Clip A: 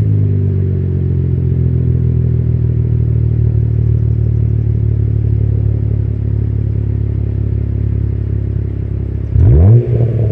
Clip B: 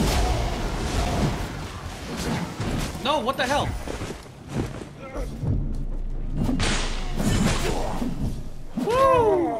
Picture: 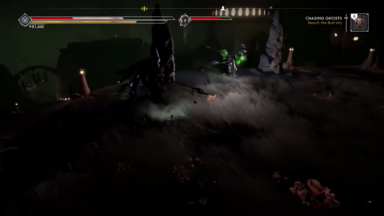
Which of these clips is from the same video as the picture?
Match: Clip B